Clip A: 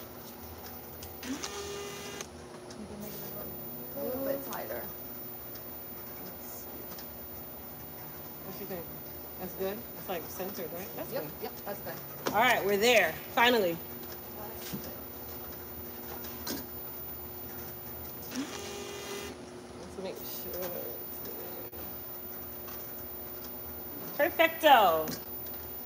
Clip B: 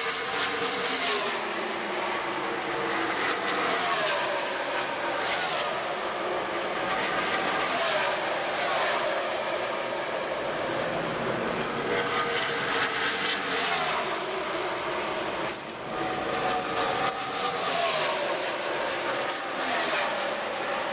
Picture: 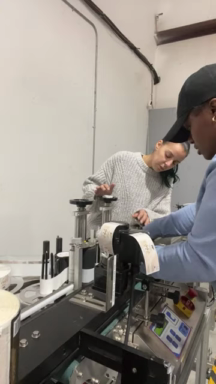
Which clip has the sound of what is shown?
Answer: A